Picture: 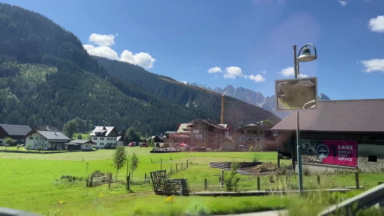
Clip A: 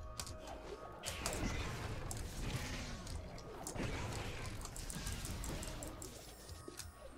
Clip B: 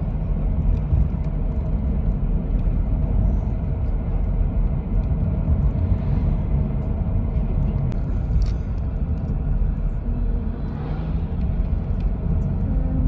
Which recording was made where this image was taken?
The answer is B